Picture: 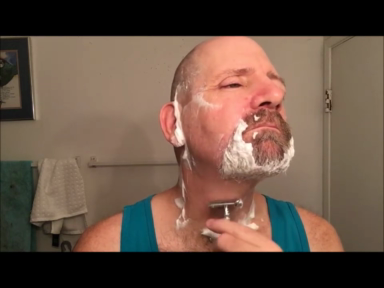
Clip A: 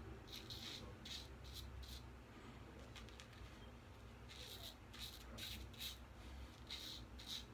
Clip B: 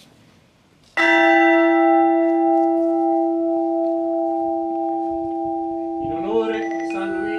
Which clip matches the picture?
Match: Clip A